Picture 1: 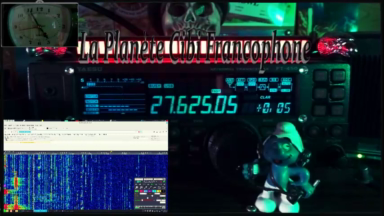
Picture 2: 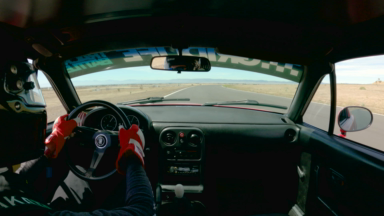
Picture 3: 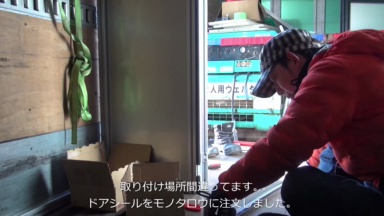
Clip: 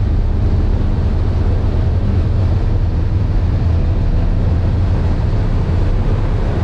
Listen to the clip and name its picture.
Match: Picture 2